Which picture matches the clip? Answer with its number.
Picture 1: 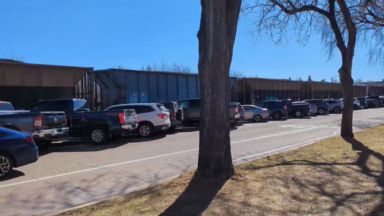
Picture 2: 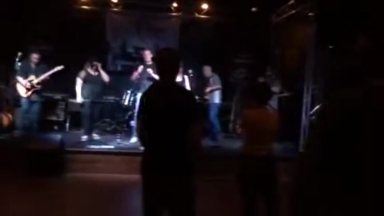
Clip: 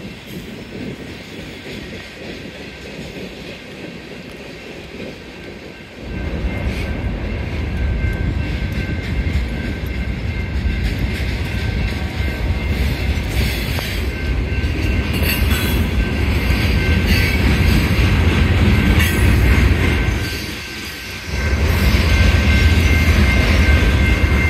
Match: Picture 1